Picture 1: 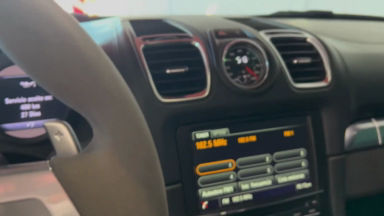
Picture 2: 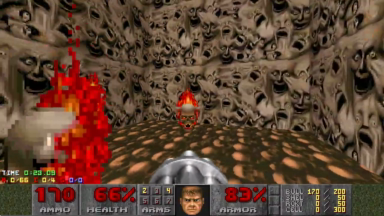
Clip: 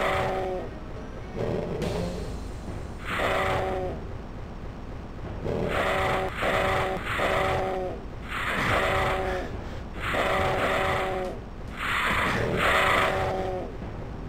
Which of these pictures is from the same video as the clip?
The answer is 2